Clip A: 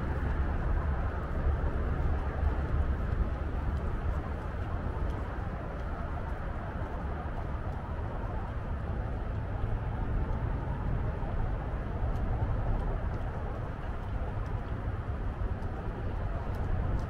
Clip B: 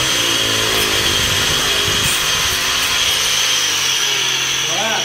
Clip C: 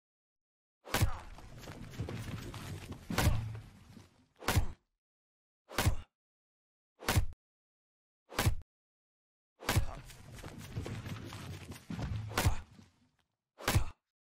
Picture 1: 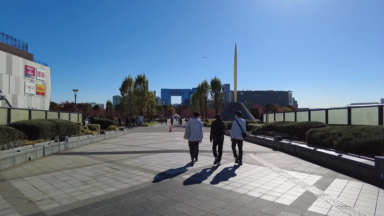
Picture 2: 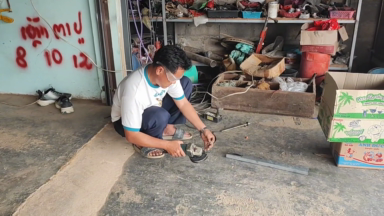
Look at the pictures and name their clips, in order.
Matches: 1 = A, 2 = B